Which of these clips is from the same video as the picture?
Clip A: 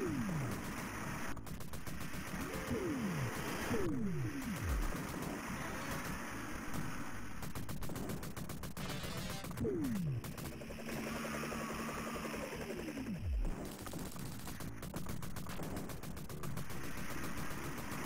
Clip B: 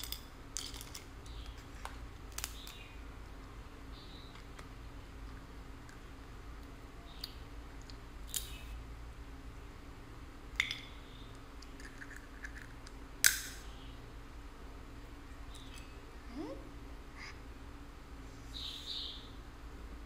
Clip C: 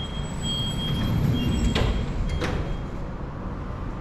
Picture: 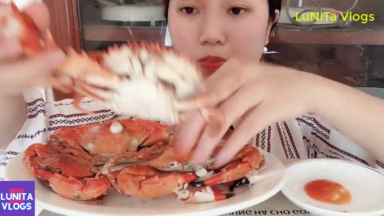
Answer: B